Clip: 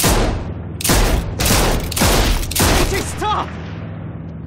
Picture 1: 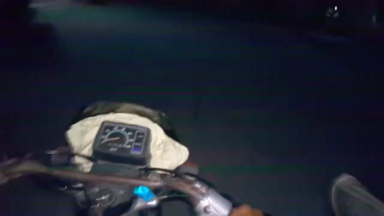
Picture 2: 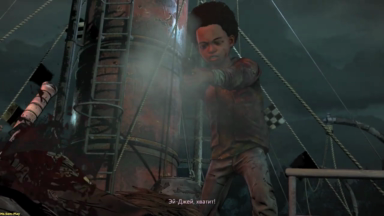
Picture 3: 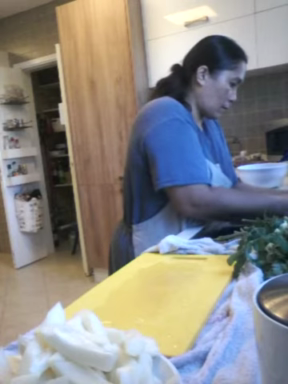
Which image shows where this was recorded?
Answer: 2